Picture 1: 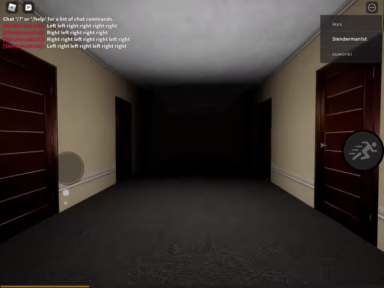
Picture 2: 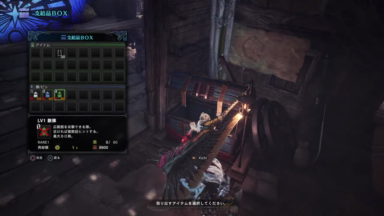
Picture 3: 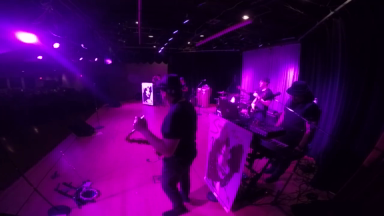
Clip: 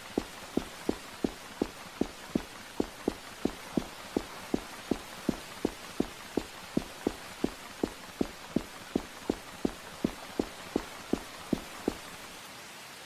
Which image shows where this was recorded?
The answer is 1